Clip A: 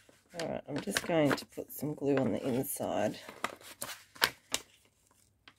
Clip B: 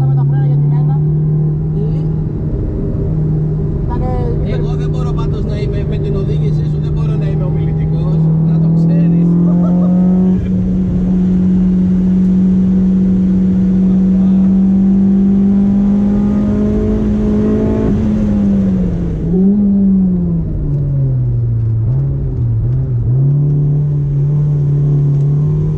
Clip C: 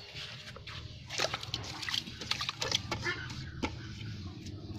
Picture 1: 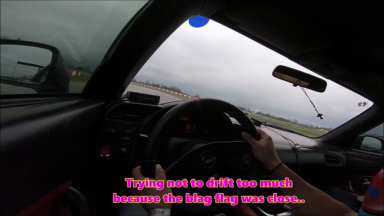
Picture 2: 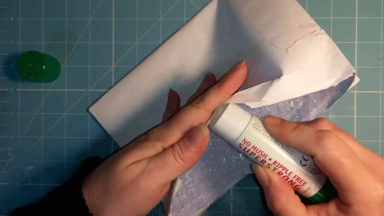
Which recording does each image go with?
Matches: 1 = B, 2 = A